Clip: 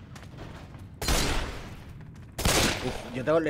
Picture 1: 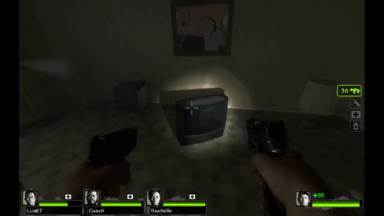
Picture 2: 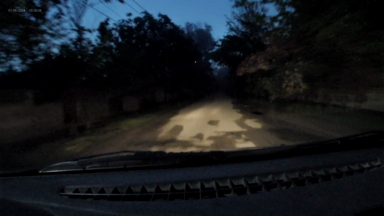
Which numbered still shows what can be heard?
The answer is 1